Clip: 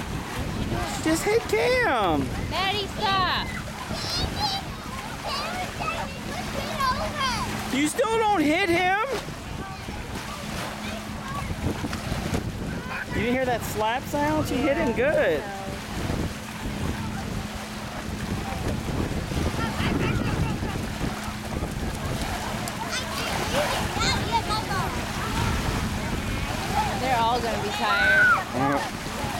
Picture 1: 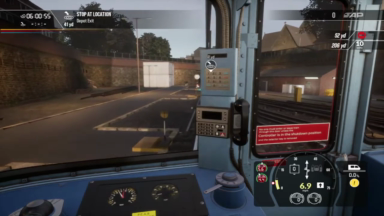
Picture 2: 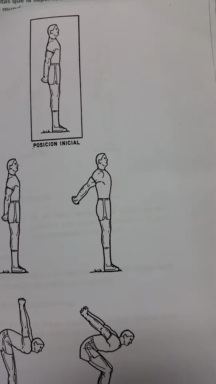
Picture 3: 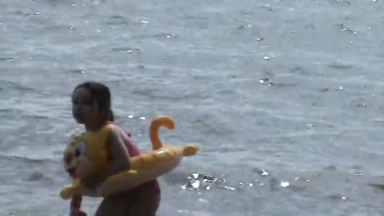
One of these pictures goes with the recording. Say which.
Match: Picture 3